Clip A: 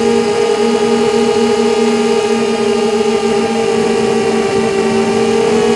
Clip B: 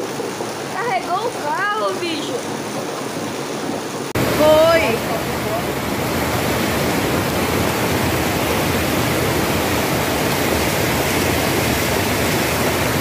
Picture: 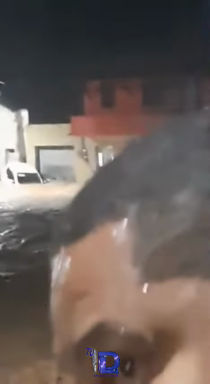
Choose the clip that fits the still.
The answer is B